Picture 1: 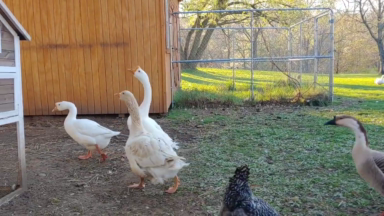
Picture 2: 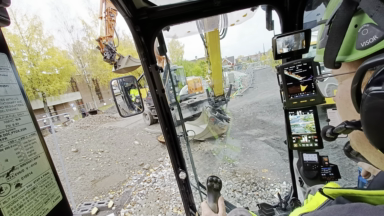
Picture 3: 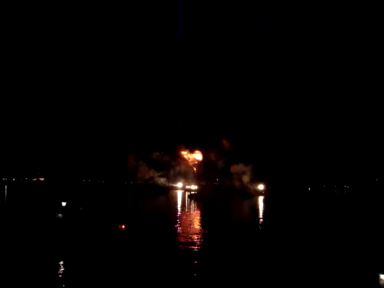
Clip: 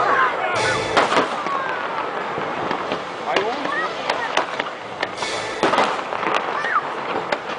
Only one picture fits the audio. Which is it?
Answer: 3